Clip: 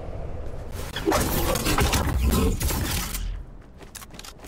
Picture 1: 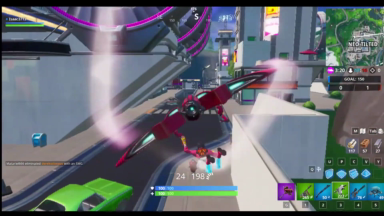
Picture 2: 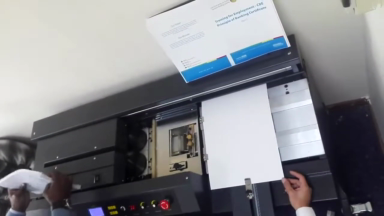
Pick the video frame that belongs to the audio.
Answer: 1